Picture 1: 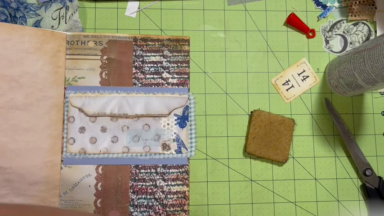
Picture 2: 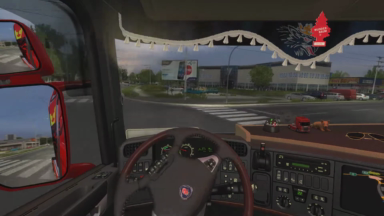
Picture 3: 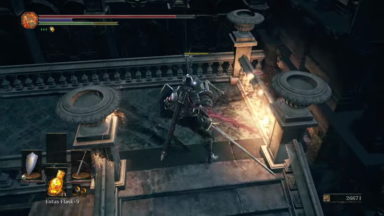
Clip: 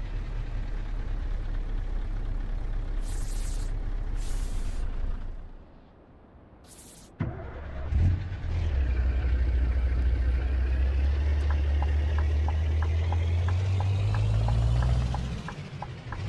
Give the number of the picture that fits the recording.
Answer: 2